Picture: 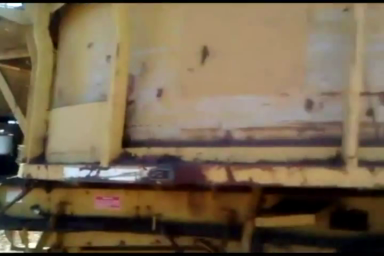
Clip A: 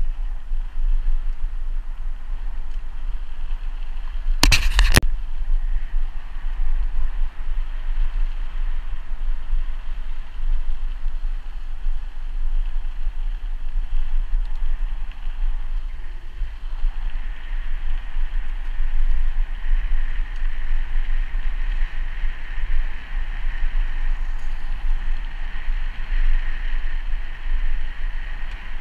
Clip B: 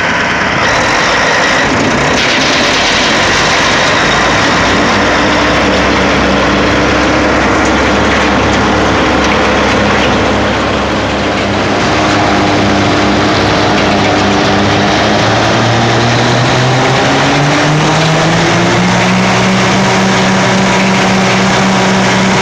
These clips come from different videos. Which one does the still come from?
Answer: B